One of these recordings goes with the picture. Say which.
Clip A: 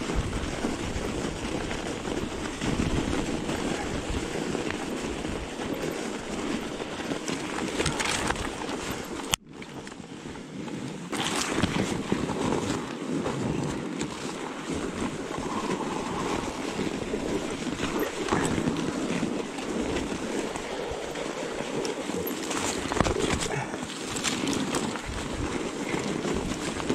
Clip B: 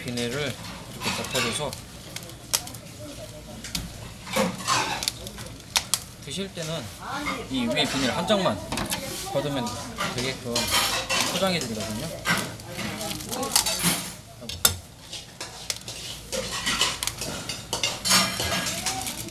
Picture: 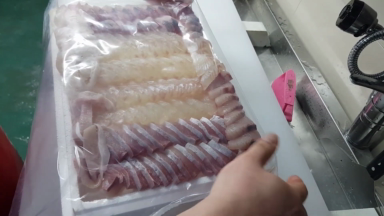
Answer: B